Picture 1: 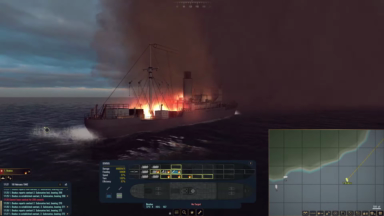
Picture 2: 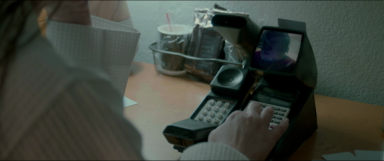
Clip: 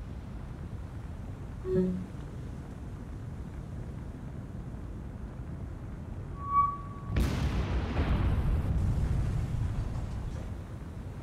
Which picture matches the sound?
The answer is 1